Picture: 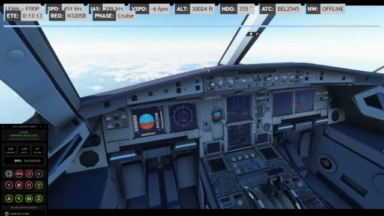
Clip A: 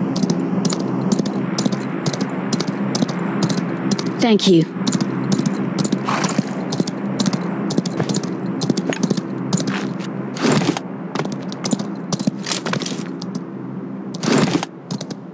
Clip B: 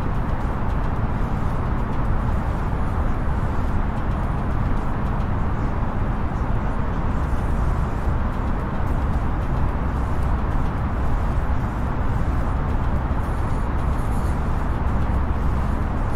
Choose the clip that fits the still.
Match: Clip B